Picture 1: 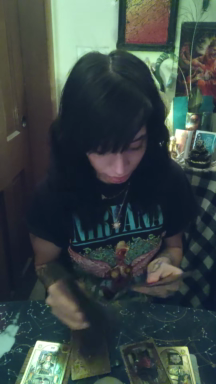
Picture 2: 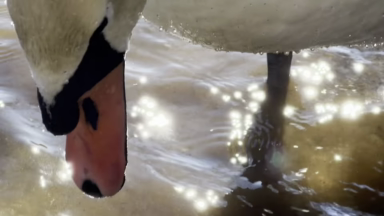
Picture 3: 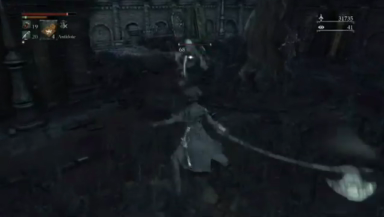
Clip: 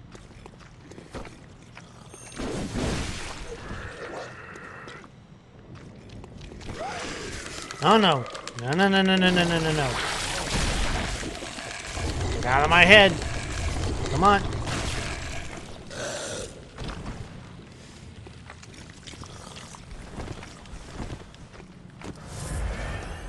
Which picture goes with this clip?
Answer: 3